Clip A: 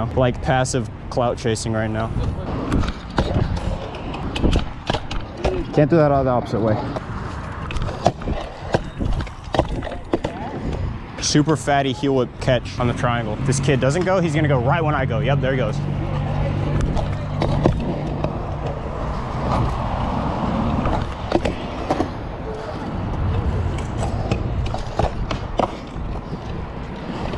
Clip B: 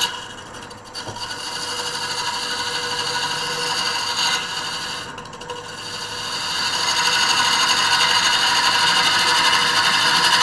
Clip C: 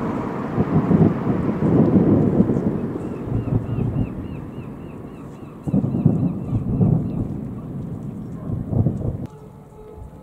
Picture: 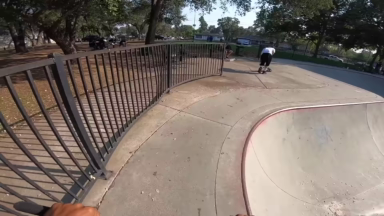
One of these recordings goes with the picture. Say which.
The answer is A